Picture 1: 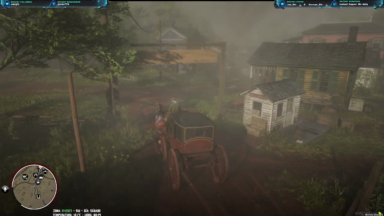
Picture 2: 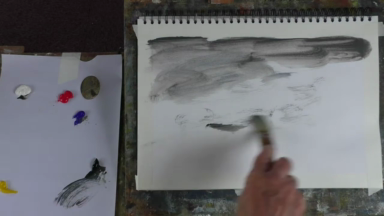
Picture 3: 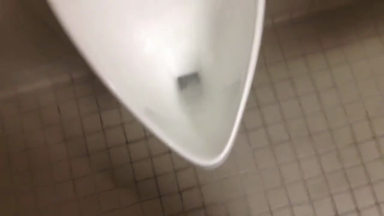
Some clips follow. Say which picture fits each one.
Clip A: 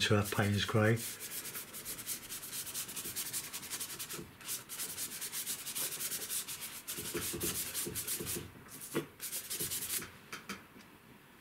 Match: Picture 2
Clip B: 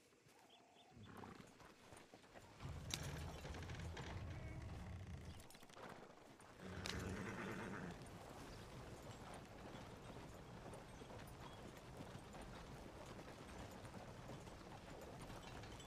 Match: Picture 1